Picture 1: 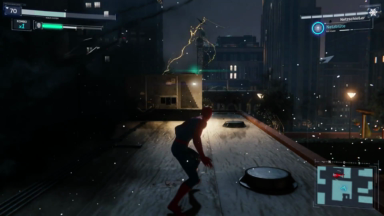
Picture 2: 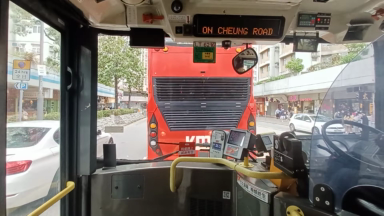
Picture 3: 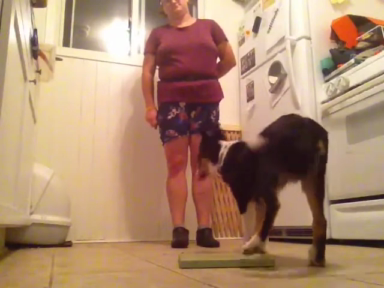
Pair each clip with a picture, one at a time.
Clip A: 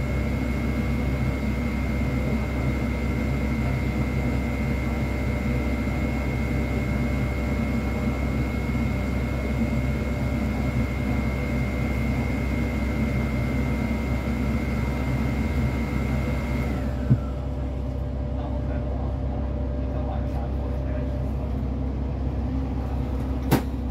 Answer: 2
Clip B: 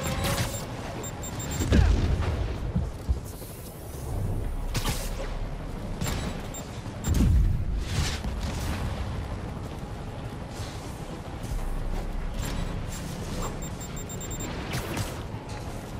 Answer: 1